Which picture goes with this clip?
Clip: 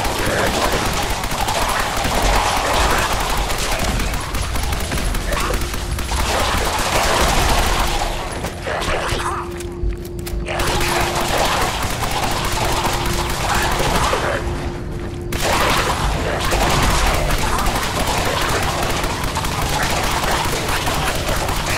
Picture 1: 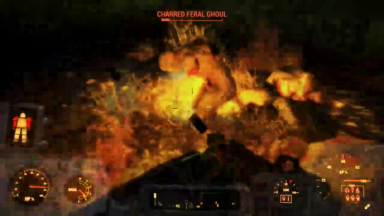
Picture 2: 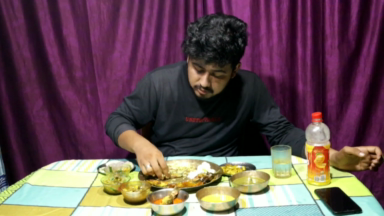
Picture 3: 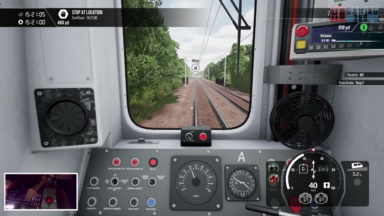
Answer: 1